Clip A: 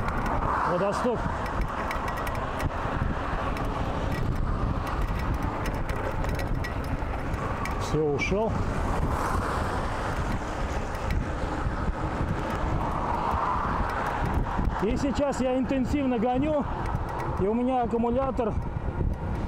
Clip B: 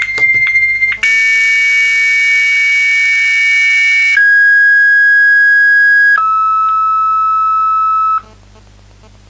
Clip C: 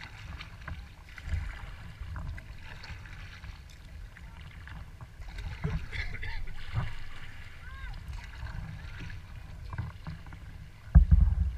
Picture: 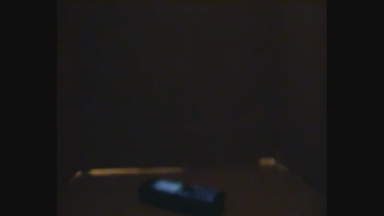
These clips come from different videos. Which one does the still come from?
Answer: B